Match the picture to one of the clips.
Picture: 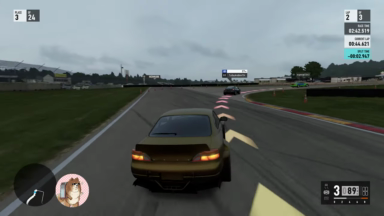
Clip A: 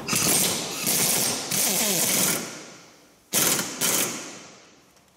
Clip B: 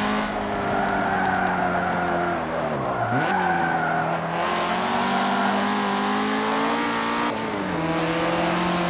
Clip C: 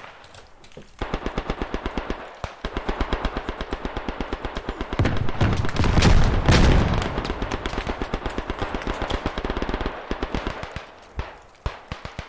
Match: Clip B